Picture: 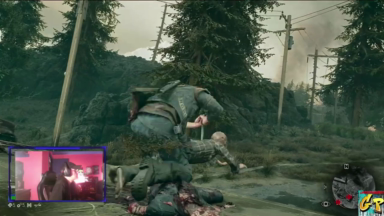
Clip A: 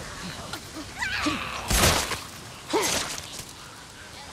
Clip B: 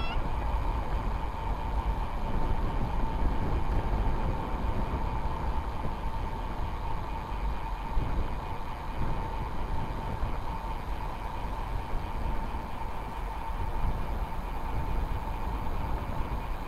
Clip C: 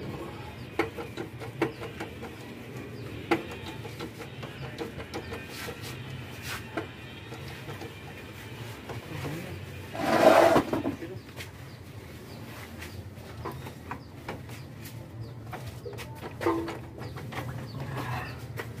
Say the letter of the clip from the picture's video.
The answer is A